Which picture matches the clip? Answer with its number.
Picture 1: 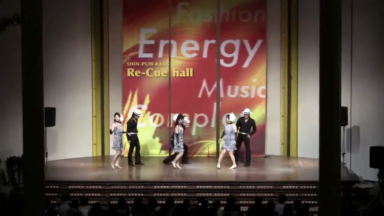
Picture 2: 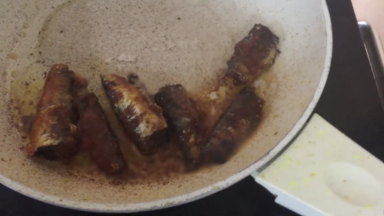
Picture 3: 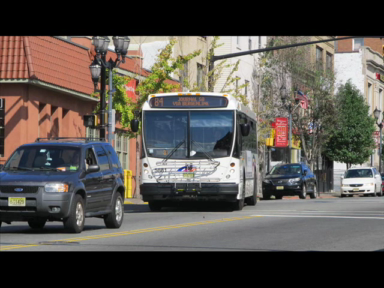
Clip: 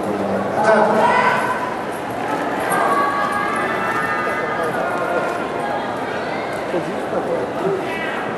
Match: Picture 1